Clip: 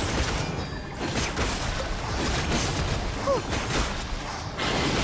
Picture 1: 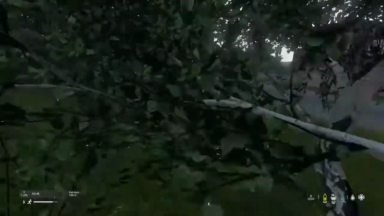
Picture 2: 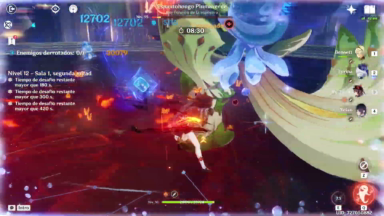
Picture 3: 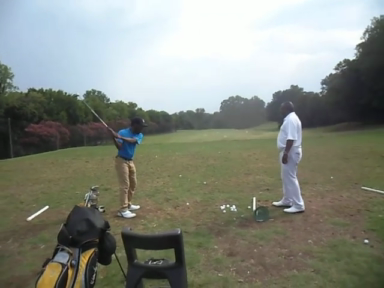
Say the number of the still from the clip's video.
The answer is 2